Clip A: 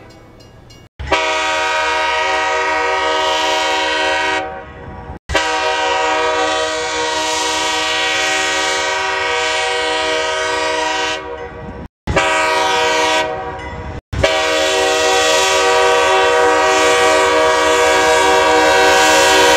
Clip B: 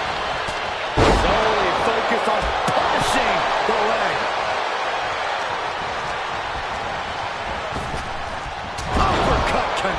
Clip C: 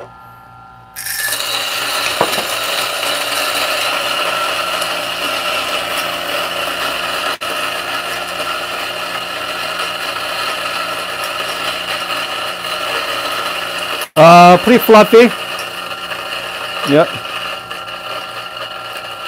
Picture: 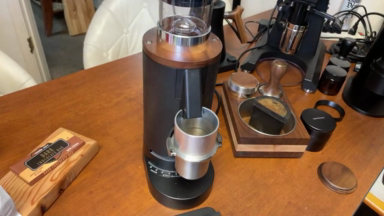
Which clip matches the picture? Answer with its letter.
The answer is C